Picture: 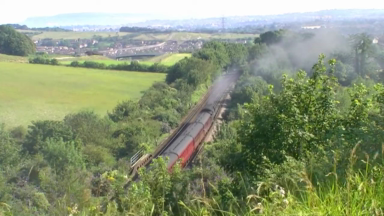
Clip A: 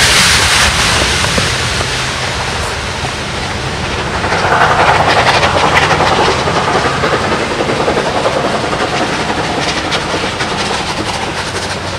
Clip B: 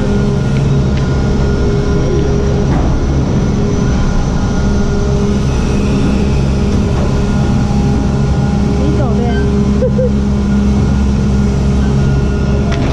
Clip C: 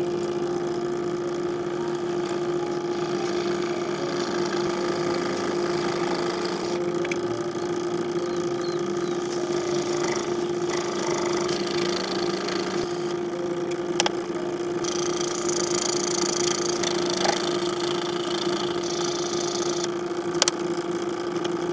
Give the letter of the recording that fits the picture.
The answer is A